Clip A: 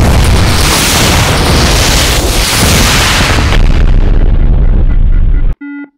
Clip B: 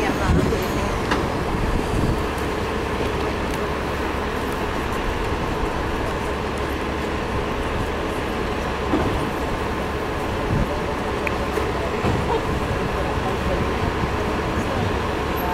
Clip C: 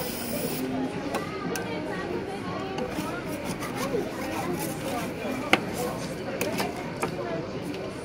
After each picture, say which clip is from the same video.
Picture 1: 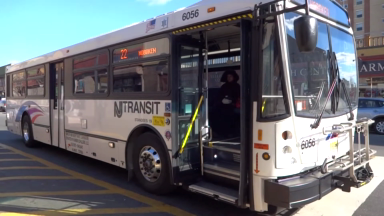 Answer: B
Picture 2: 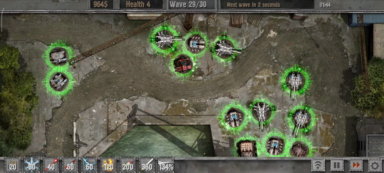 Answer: A